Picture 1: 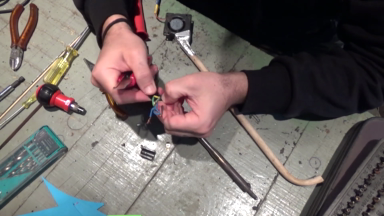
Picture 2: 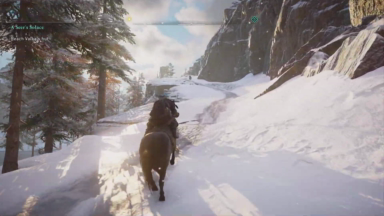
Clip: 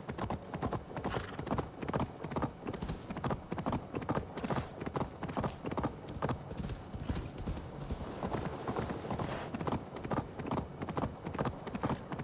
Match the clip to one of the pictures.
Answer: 2